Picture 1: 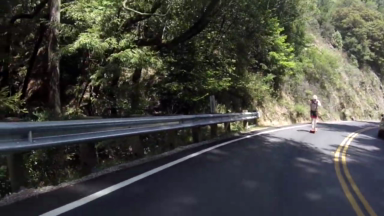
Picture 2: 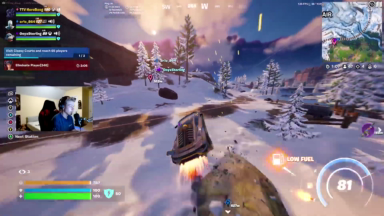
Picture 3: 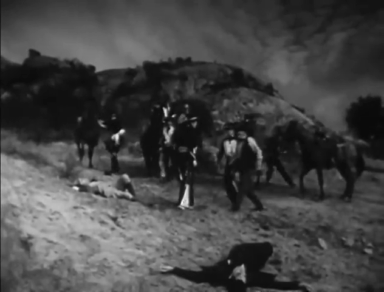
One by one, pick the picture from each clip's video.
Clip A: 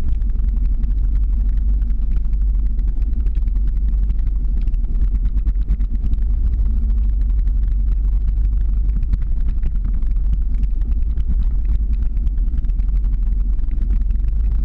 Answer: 1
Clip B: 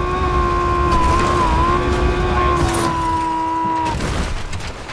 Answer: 2